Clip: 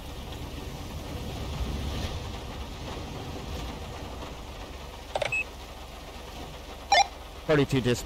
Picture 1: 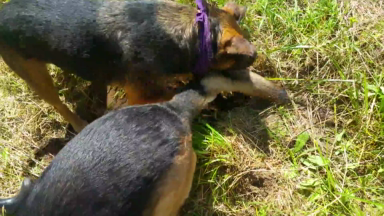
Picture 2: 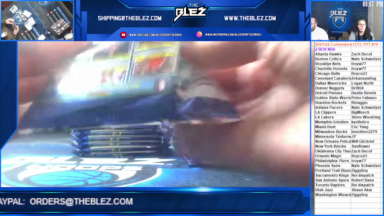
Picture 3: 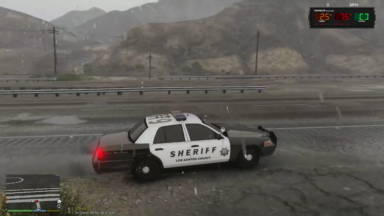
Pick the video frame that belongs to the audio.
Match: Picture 3